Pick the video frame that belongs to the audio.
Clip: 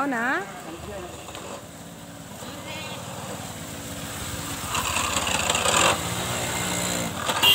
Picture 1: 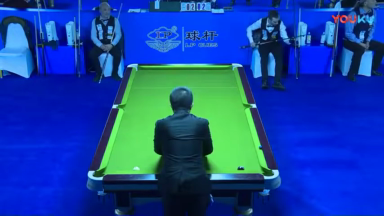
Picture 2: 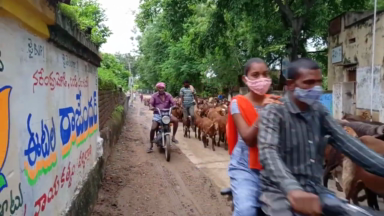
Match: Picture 2